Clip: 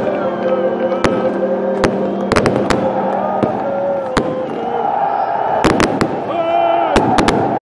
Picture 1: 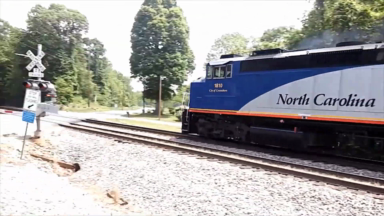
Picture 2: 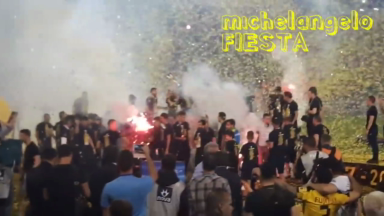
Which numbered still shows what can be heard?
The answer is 2